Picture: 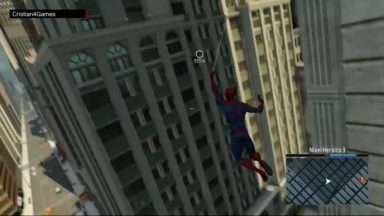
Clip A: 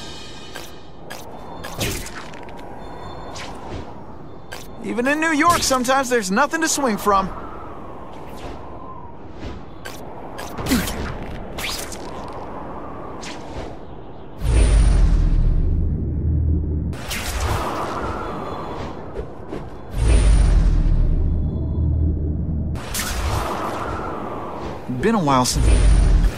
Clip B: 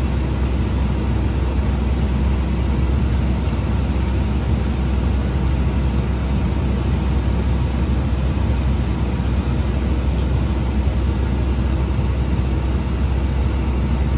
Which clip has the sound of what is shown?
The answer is A